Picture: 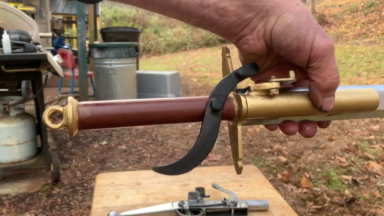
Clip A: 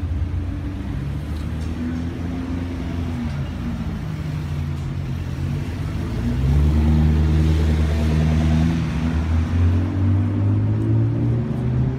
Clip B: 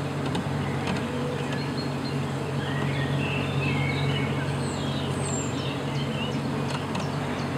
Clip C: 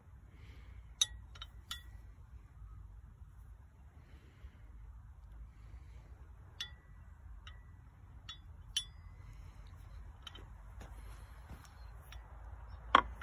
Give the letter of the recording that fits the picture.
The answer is C